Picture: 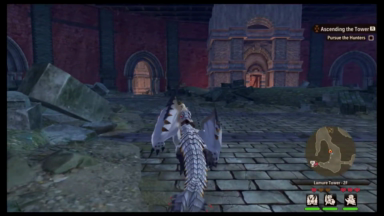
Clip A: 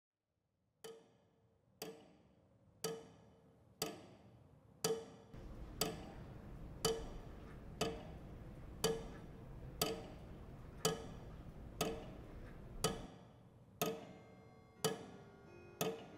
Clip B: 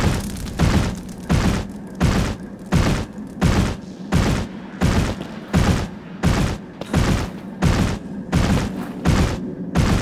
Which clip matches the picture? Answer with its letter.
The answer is B